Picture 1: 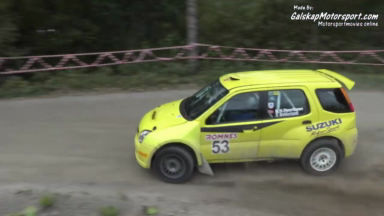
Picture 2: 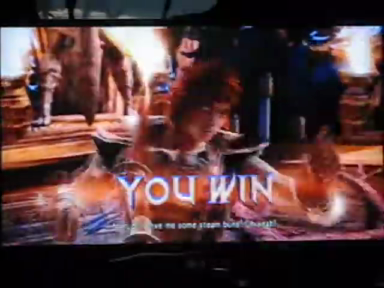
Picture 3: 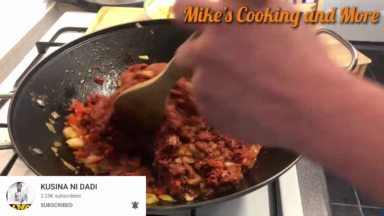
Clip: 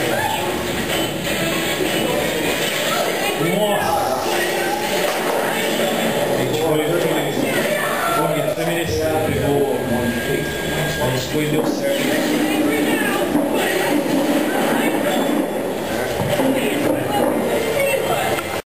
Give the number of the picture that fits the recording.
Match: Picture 2